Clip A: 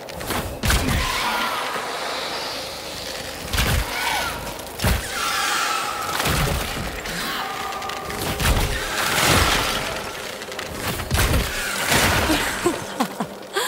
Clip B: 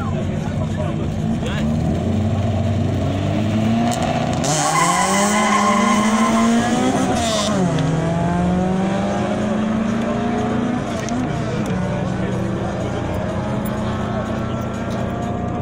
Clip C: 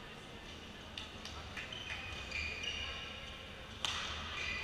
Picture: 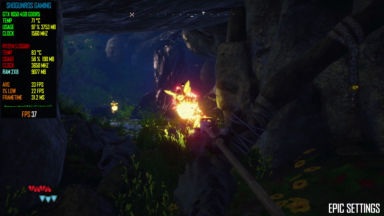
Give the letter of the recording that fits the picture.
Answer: A